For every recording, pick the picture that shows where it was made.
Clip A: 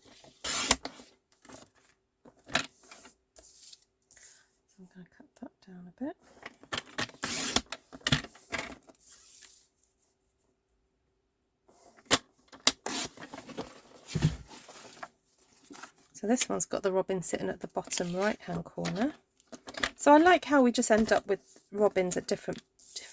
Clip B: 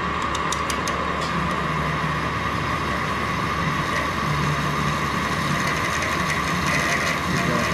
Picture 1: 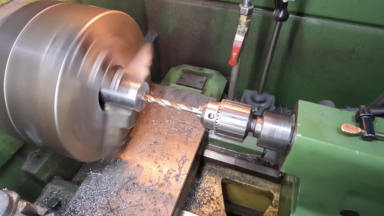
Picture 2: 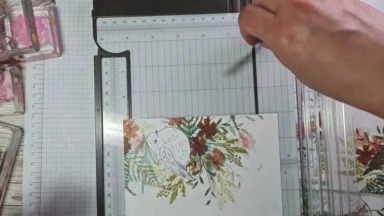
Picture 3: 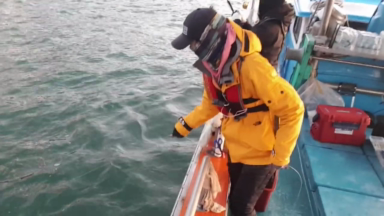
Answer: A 2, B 1